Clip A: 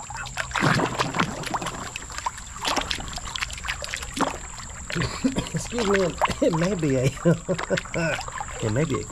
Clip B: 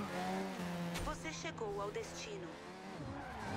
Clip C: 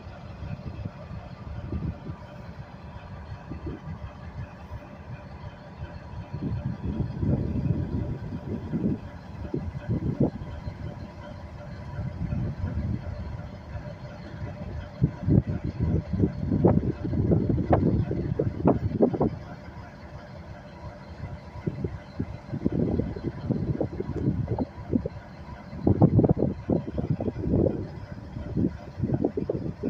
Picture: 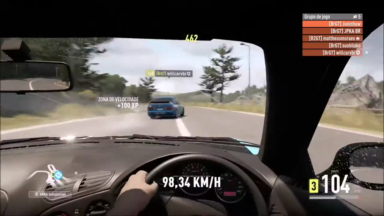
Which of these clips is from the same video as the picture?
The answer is B